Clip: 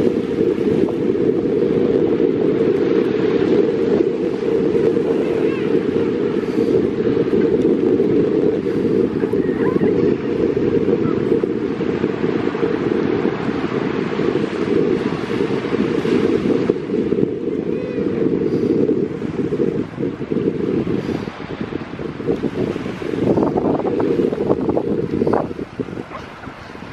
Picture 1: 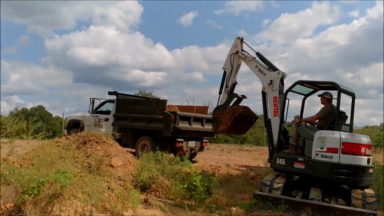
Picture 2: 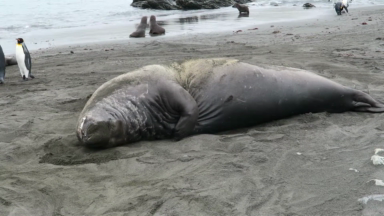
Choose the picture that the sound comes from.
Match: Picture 2